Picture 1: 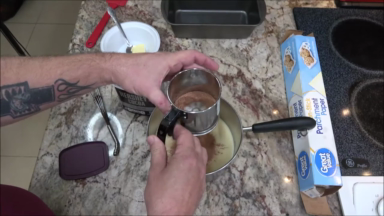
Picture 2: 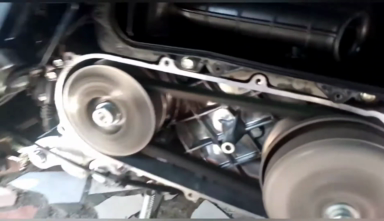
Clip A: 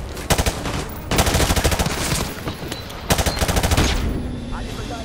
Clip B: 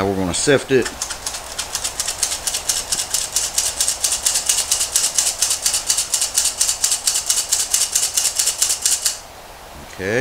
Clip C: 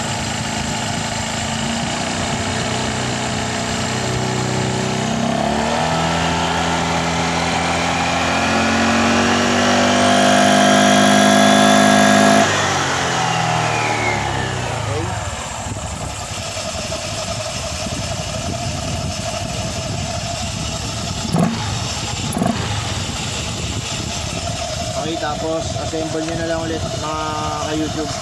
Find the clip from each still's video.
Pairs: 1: B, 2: C